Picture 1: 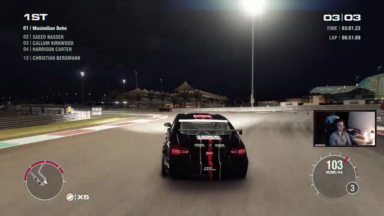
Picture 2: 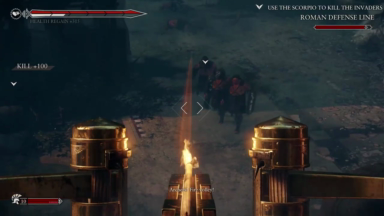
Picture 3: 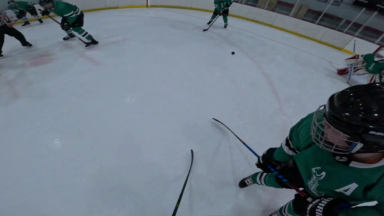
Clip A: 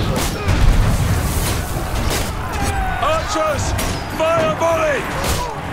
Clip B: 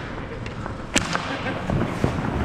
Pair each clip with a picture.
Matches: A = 2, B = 3